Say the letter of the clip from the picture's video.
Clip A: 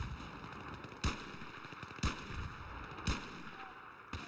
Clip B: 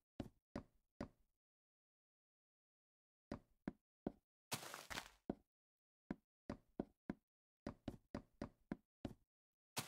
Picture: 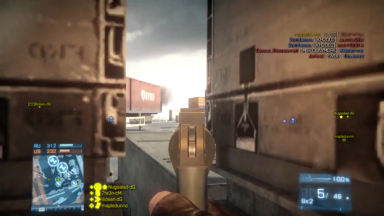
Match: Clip A